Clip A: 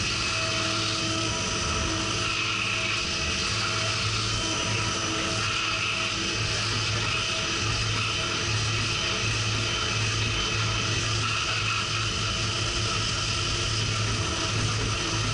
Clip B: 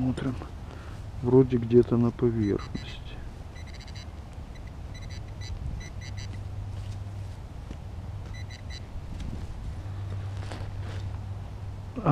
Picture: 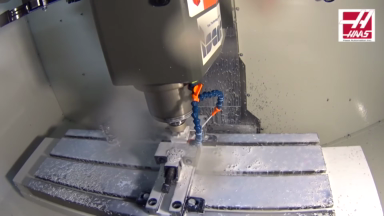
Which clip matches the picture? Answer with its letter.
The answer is A